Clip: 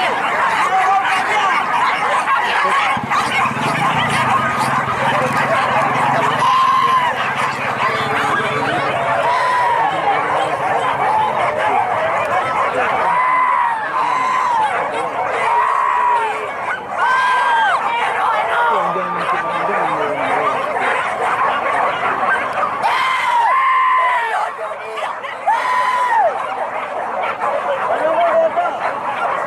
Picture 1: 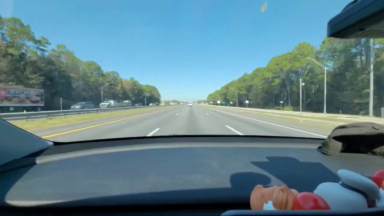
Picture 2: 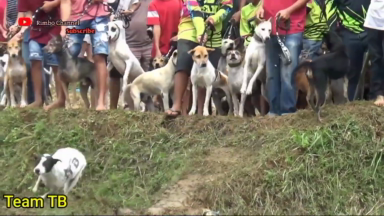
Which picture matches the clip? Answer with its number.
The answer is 2